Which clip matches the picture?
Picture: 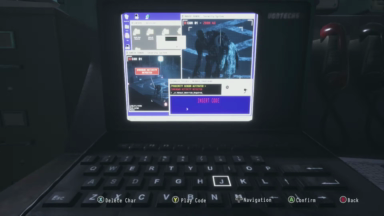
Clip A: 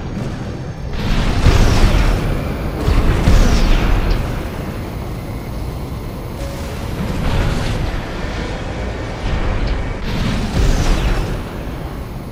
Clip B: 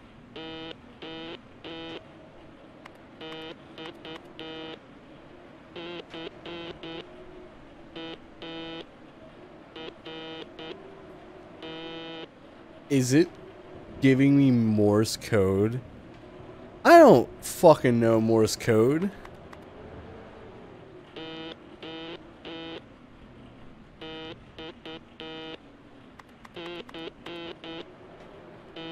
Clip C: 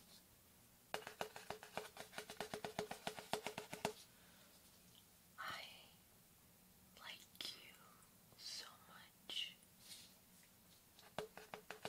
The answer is B